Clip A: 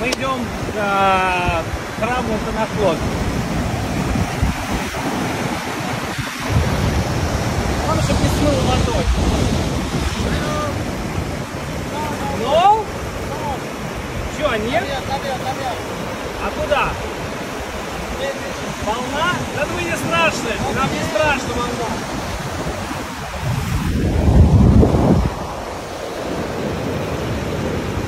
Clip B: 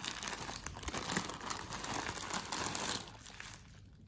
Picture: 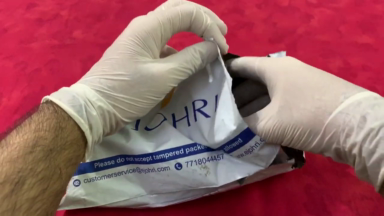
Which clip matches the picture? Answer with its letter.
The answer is B